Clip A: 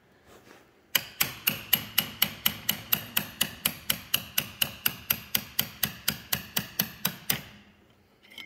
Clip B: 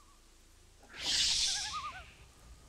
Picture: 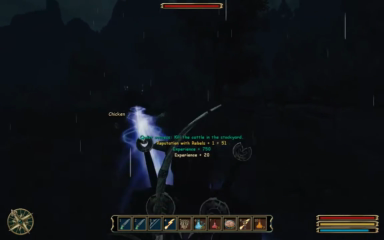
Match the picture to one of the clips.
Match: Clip B